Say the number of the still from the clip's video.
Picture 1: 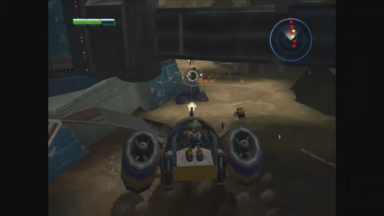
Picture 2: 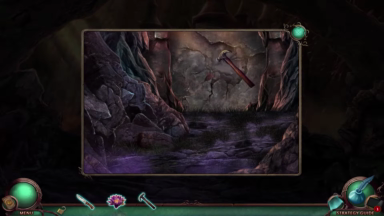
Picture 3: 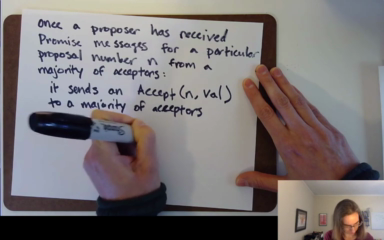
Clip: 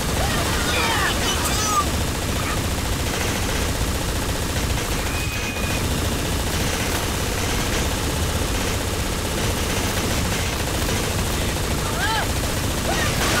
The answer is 1